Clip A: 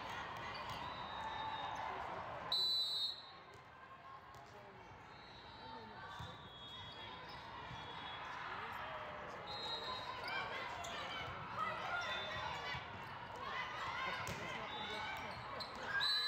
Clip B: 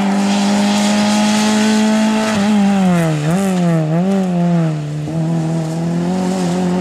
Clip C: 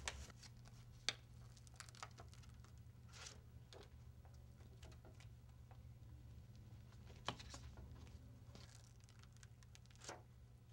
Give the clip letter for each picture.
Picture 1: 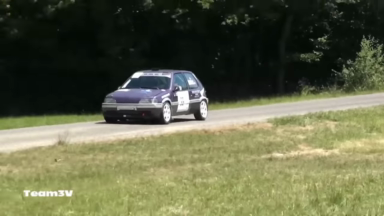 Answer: B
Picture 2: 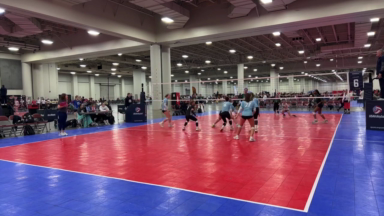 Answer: A